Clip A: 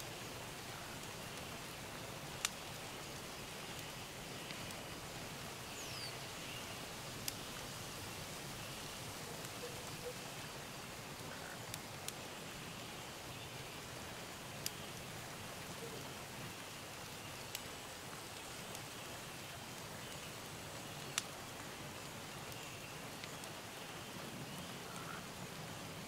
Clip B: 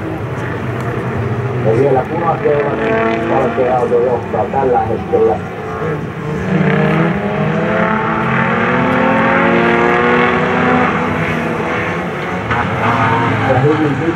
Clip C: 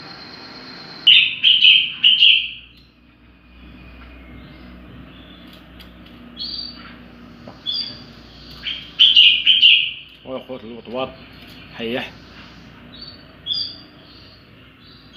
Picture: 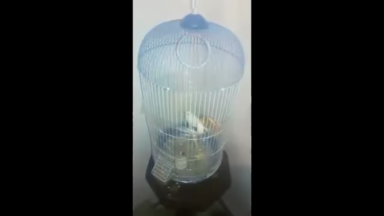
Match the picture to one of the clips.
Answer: C